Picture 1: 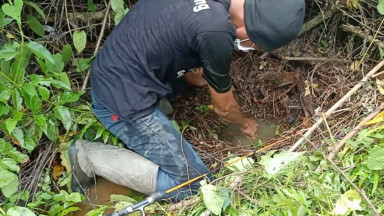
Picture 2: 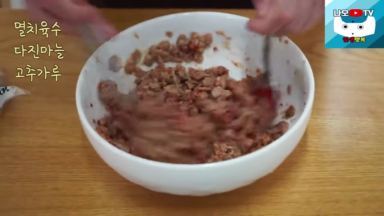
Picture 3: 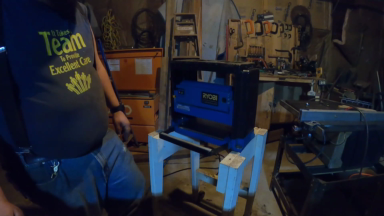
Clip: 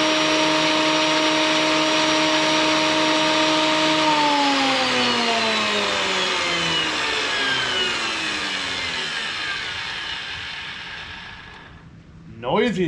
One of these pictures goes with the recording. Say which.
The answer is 3